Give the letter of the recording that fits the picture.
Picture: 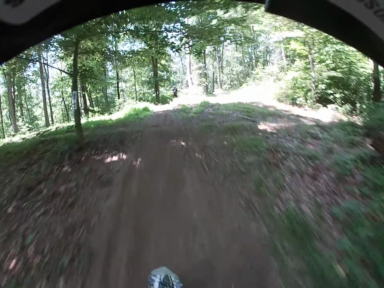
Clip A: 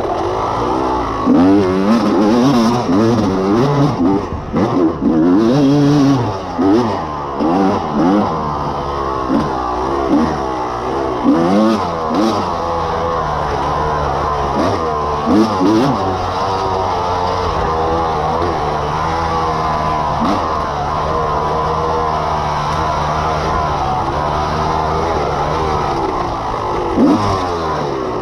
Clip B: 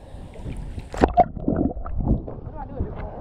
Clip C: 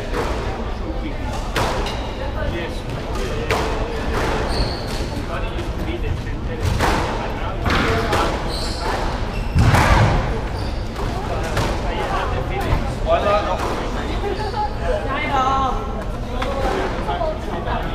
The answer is A